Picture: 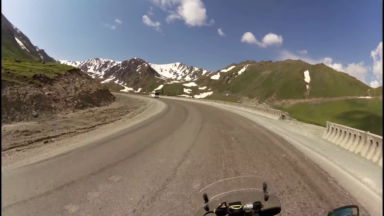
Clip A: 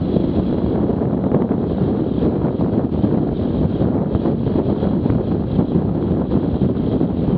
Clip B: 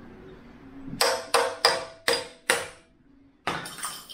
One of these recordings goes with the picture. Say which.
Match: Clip A